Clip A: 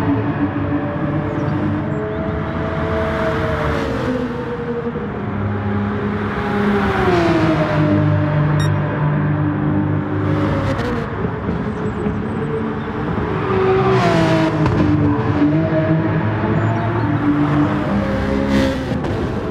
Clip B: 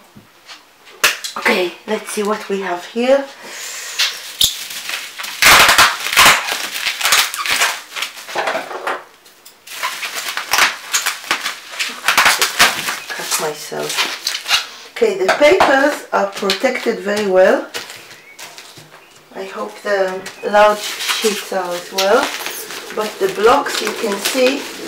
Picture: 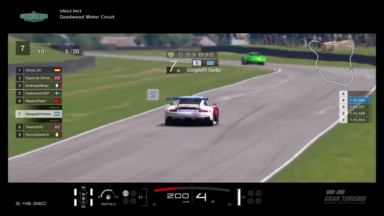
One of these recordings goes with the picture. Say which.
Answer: A